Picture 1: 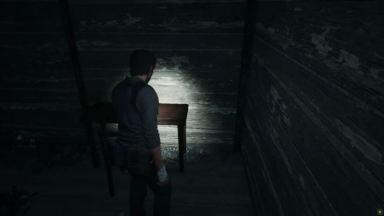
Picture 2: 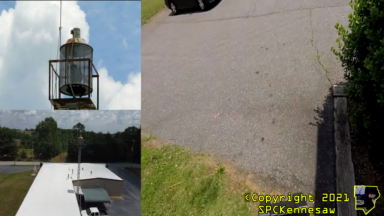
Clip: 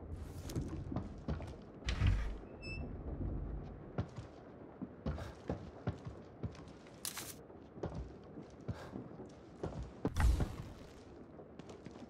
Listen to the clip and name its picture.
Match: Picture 1